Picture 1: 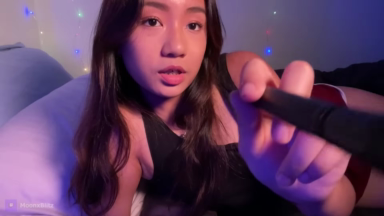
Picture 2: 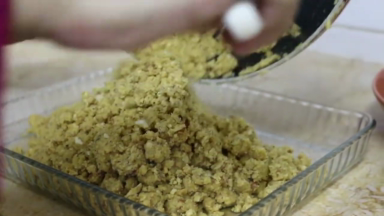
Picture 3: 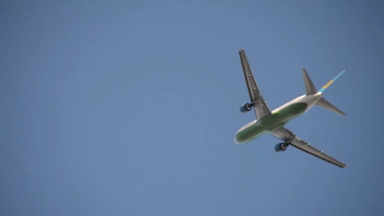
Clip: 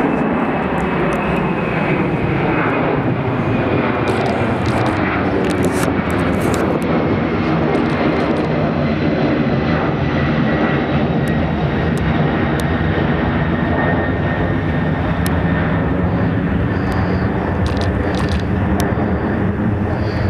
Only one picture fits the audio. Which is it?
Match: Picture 3